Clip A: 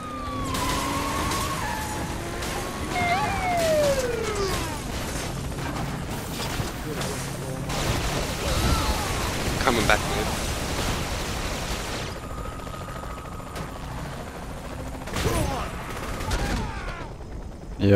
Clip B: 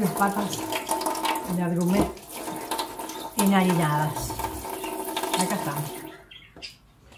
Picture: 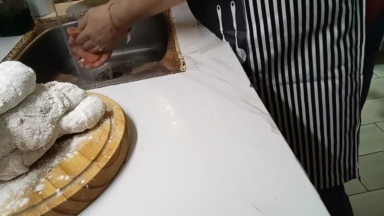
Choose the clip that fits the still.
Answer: B